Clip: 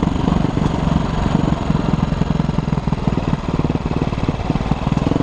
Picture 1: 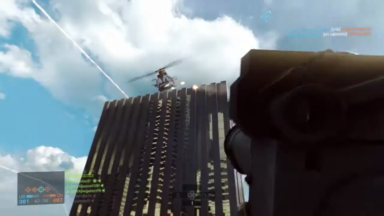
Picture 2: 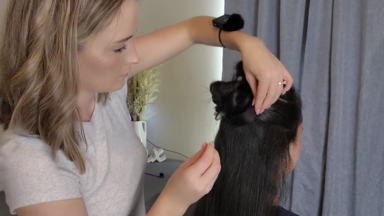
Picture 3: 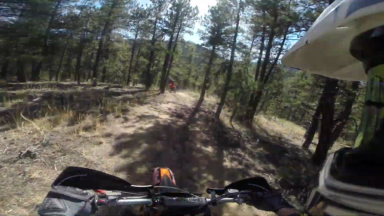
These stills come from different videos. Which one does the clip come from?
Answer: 3